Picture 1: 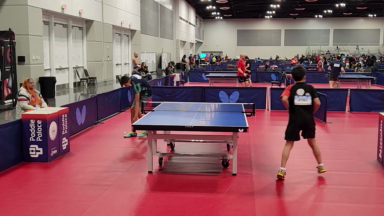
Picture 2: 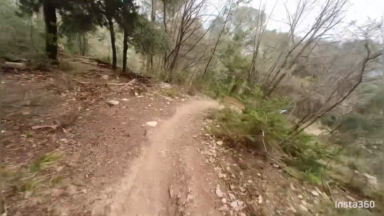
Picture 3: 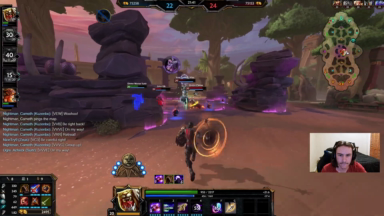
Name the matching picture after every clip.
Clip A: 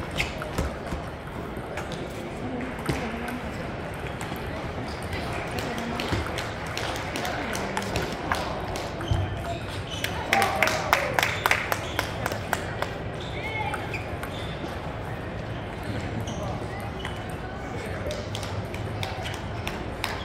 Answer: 1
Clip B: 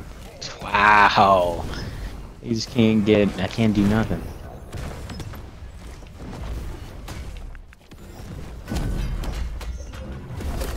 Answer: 3